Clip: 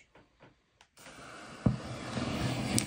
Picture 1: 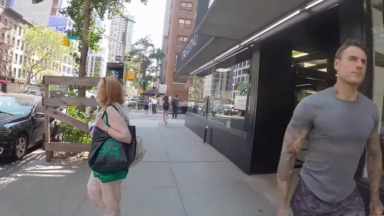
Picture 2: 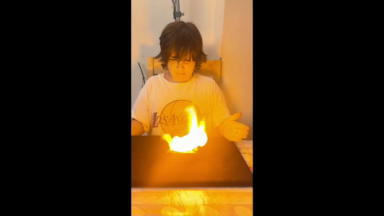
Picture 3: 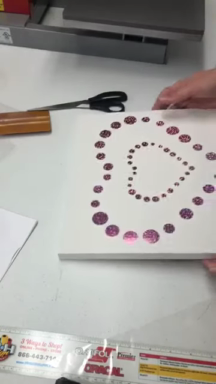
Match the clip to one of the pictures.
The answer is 2